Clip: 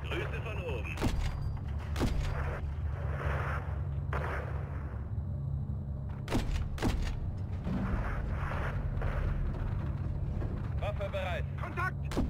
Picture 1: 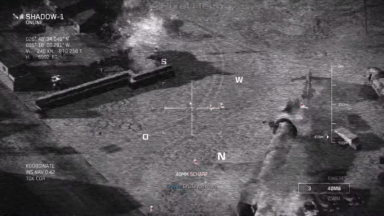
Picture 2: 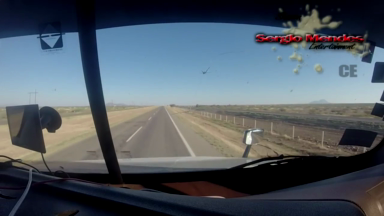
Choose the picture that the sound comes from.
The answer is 1